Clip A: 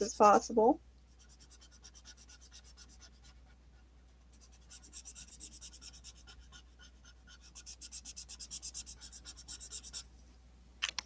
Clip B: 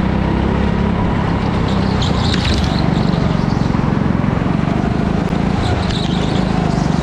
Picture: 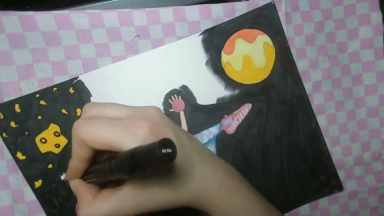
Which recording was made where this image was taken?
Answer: A